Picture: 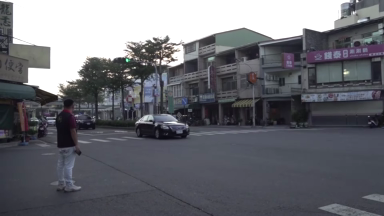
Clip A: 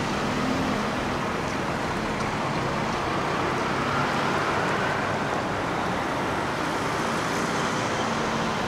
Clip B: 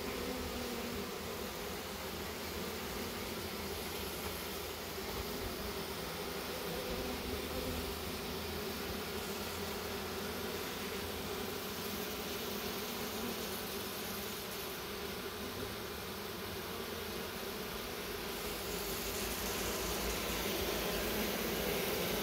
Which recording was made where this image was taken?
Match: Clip A